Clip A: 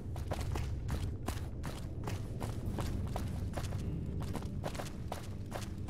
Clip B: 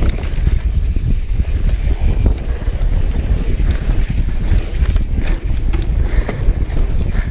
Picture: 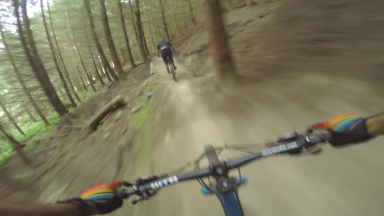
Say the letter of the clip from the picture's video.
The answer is B